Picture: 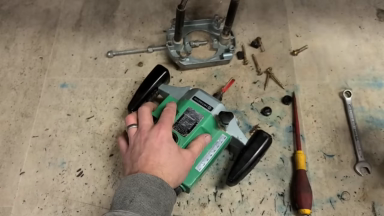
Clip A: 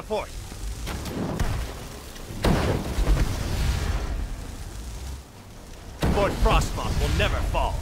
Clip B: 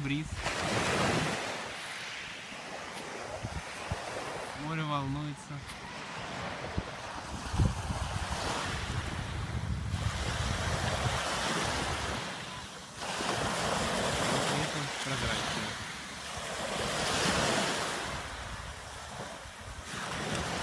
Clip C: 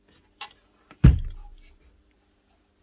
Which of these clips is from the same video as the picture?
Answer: C